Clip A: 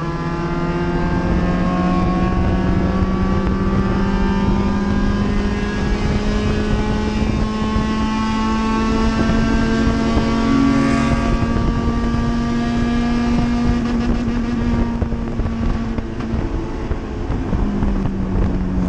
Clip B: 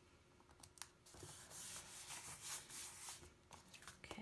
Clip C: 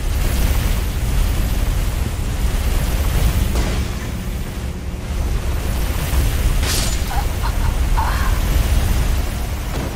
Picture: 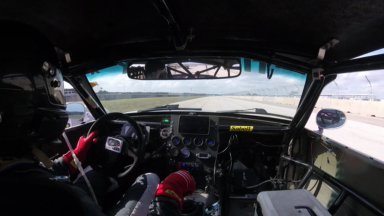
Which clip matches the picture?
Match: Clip A